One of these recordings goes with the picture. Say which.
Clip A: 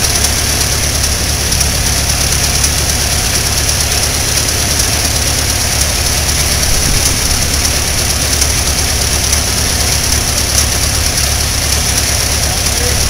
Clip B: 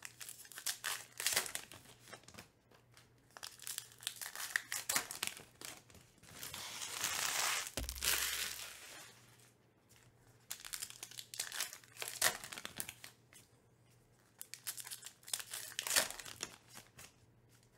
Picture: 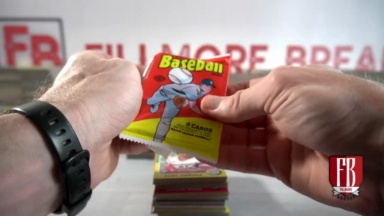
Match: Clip B